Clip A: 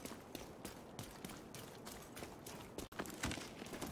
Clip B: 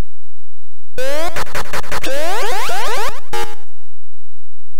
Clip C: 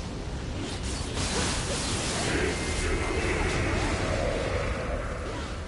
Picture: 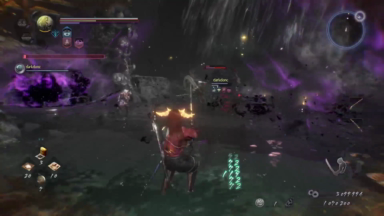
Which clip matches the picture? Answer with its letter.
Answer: C